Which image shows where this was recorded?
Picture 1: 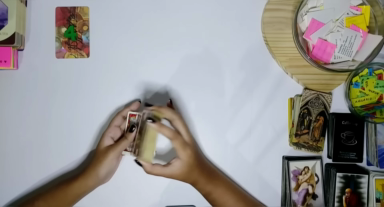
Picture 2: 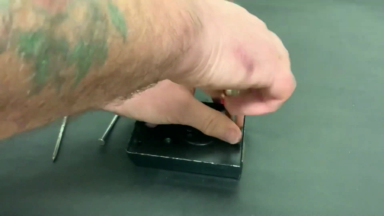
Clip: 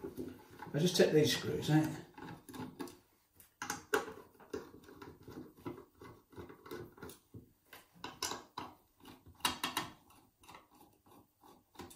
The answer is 2